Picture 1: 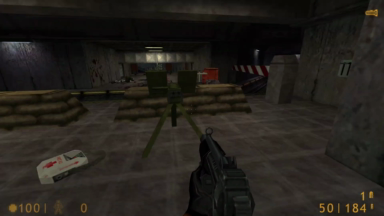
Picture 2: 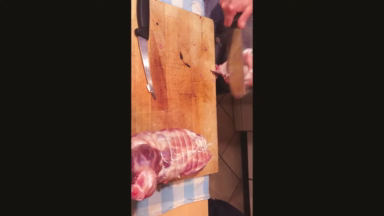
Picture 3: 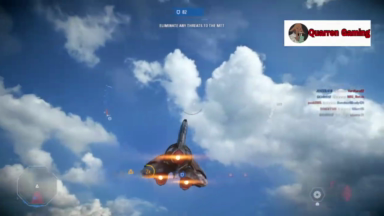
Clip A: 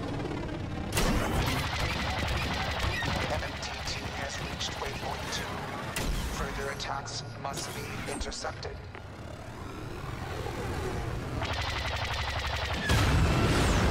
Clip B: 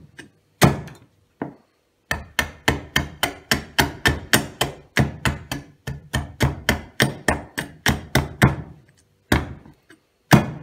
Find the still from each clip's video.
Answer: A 3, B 2